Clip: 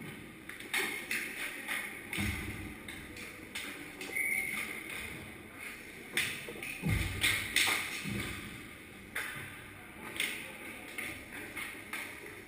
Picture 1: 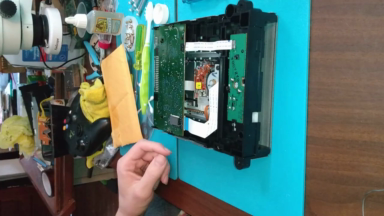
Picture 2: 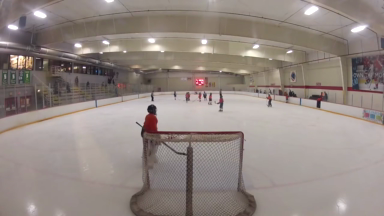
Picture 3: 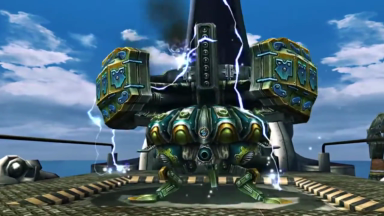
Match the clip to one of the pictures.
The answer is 2